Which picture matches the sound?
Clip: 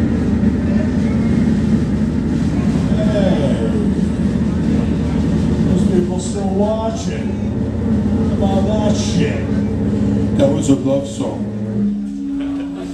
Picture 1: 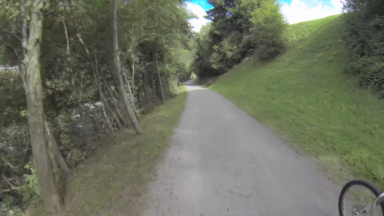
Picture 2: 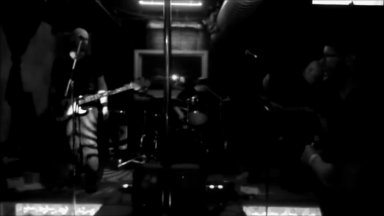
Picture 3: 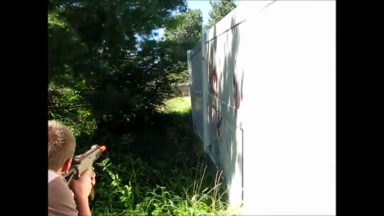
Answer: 2